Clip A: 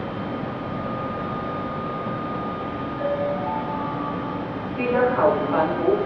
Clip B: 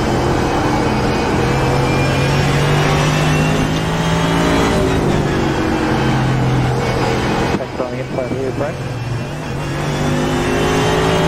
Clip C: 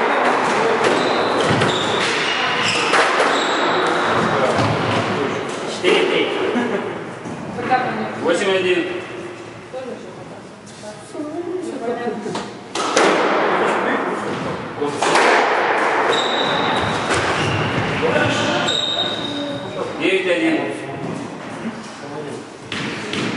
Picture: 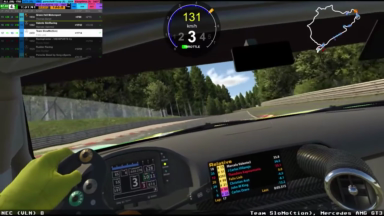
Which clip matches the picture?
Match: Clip B